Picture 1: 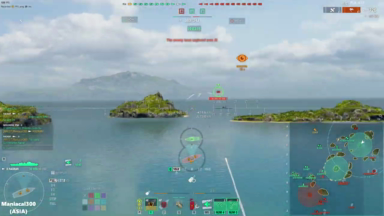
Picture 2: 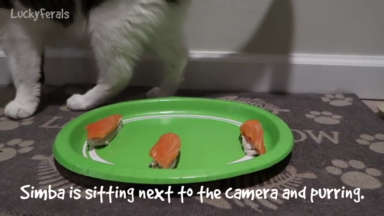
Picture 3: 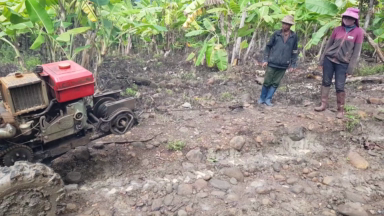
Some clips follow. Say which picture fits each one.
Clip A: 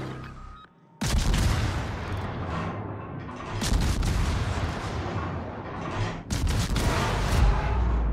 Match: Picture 1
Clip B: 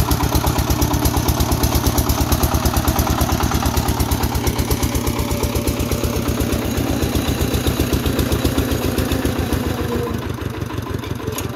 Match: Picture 3